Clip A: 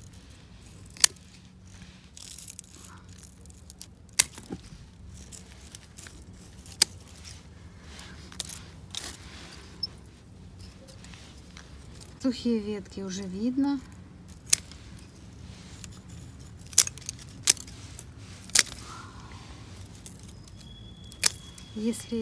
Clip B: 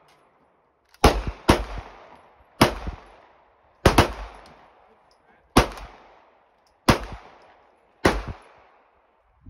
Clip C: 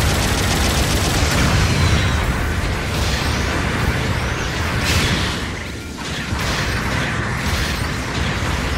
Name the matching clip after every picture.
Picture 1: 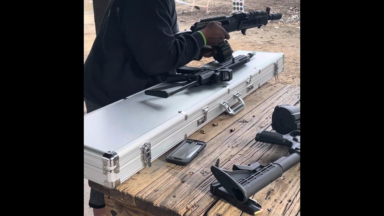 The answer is B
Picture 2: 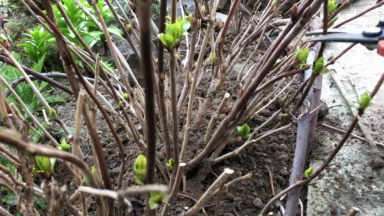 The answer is A